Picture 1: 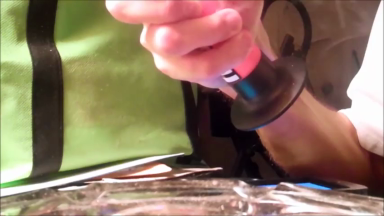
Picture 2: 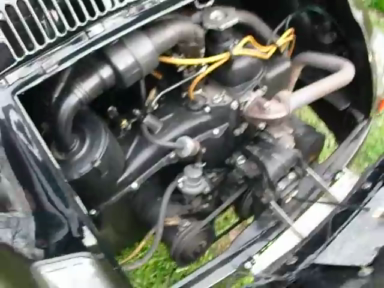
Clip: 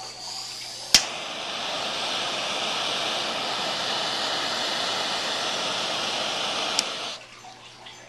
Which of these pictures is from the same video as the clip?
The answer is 1